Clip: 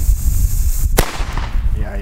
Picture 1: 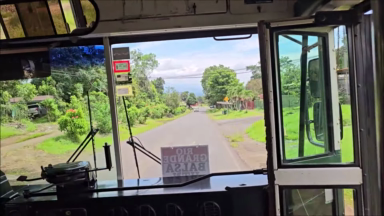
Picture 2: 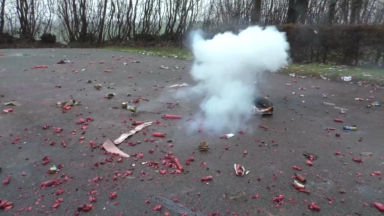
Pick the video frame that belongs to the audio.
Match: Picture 2